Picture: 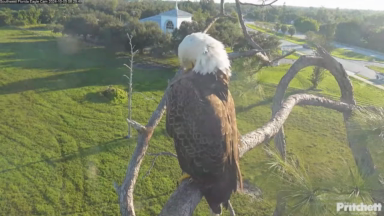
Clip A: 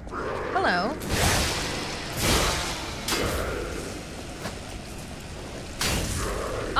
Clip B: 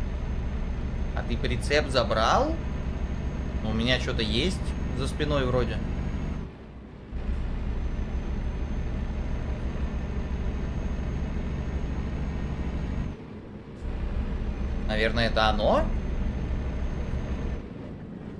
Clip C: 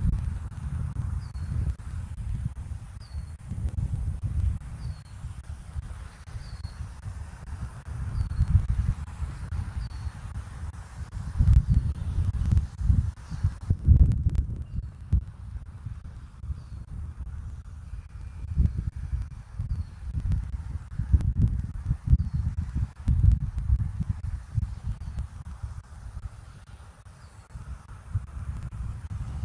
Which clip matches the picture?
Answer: C